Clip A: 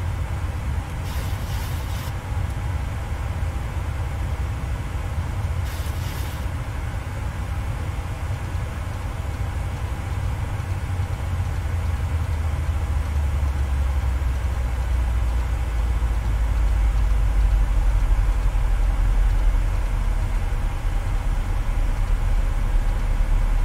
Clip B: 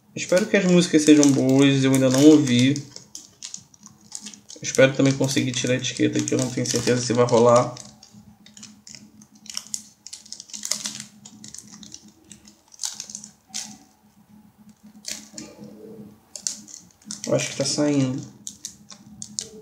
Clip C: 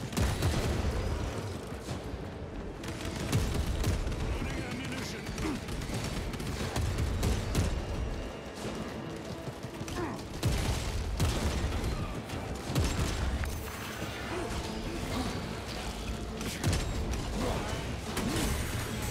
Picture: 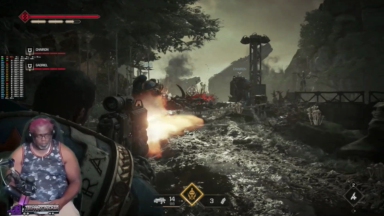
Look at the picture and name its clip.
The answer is C